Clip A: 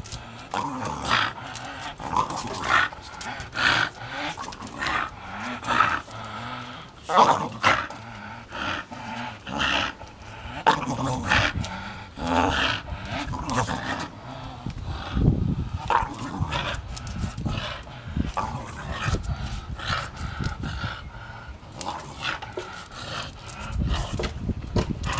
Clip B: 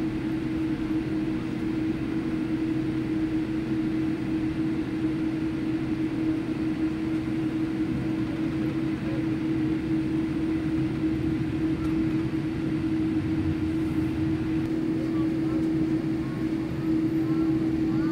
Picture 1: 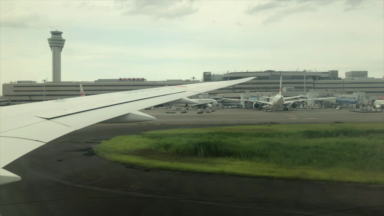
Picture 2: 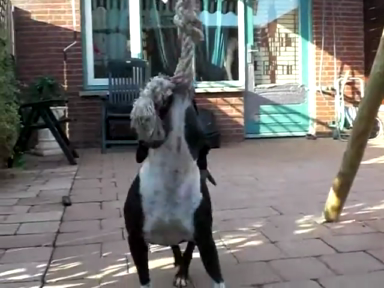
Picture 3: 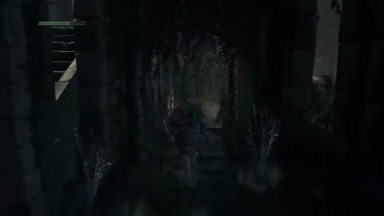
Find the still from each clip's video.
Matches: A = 2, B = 1